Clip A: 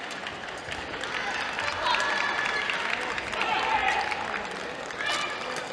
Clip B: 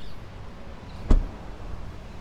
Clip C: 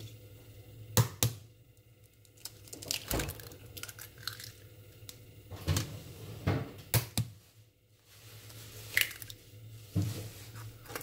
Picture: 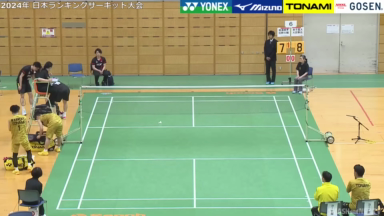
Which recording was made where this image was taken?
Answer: A